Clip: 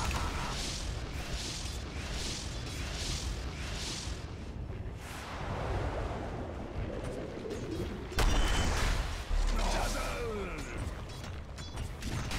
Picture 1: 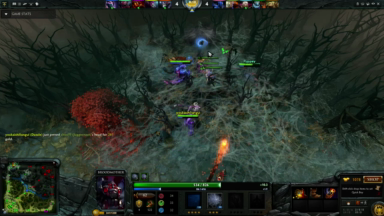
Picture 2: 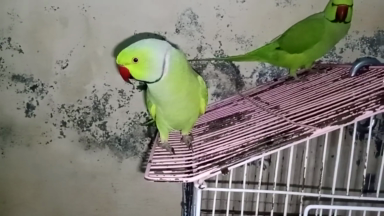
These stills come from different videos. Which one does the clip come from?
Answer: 1